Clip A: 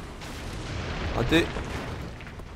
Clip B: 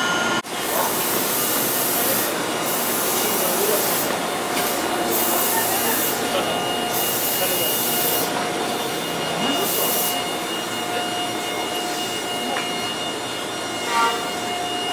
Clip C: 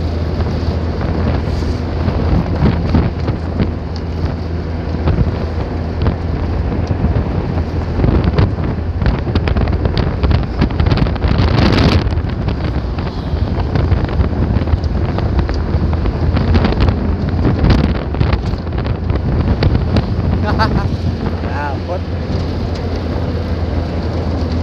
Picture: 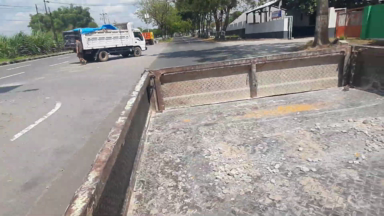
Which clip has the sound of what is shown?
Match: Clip C